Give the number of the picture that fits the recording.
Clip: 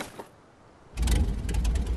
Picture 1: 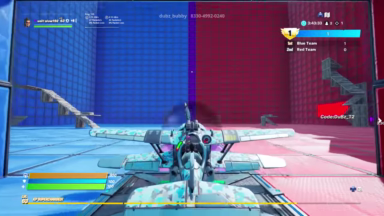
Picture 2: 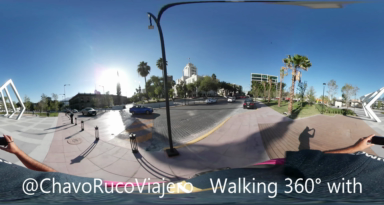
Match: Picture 1